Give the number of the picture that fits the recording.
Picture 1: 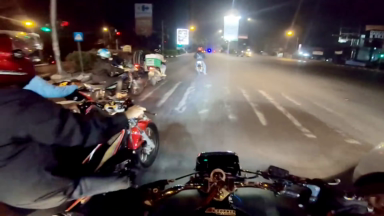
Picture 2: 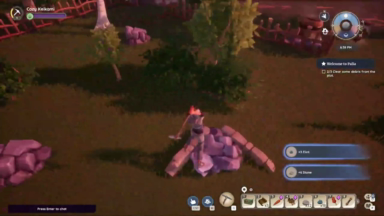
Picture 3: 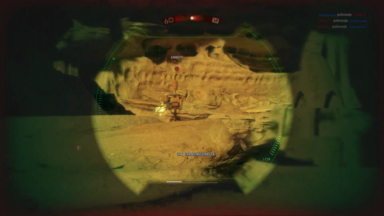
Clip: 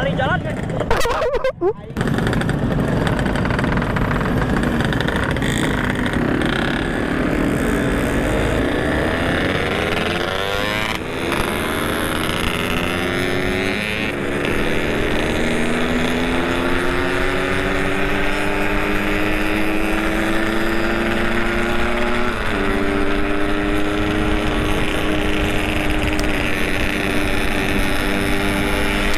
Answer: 1